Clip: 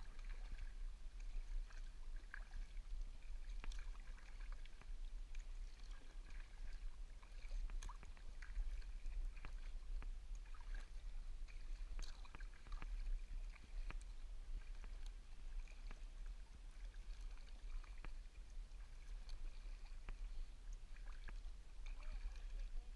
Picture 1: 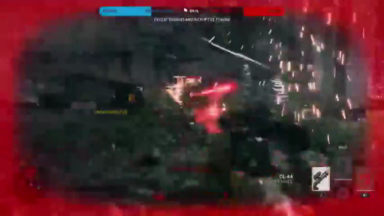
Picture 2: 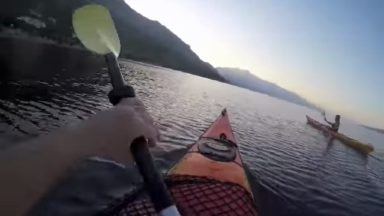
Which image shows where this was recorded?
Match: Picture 2